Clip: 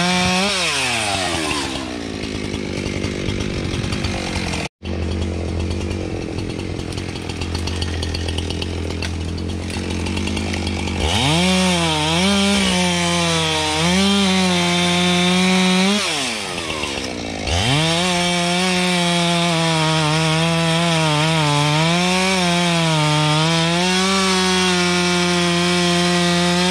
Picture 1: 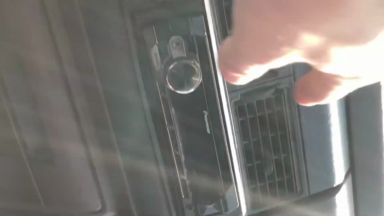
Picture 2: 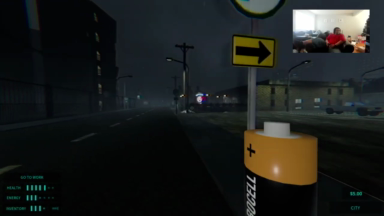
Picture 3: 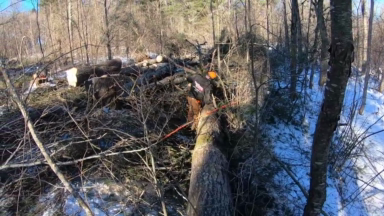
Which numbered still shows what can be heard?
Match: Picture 3